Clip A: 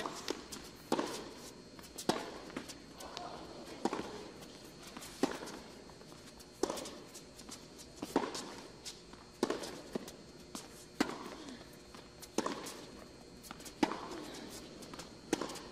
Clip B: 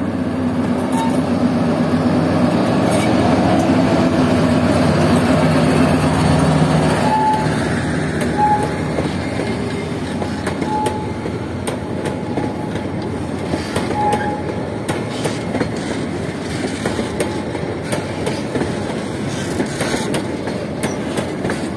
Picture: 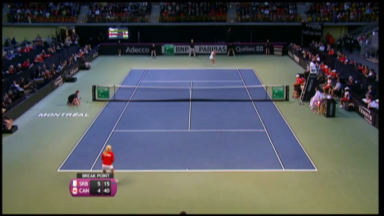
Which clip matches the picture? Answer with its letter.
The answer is A